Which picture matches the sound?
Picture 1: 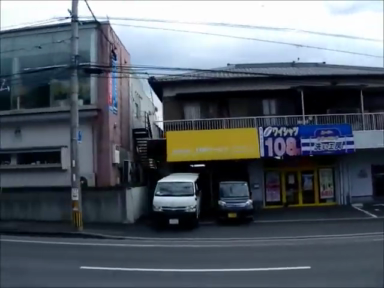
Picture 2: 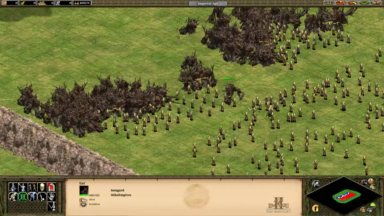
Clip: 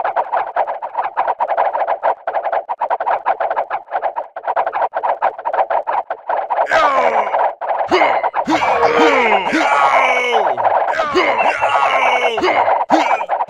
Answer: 2